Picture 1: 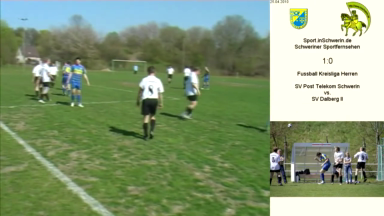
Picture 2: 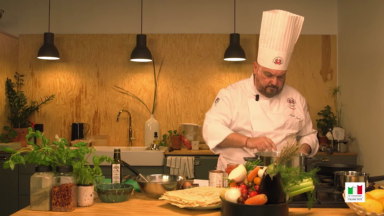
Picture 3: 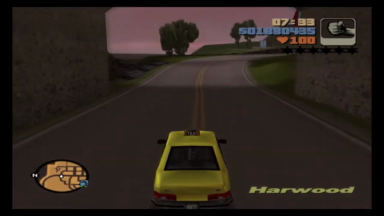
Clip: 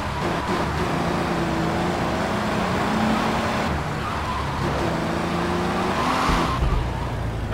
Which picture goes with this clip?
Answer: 3